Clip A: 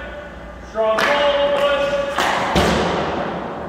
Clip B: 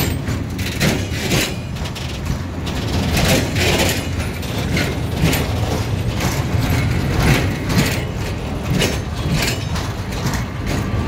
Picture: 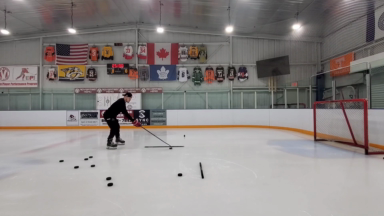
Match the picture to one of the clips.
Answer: A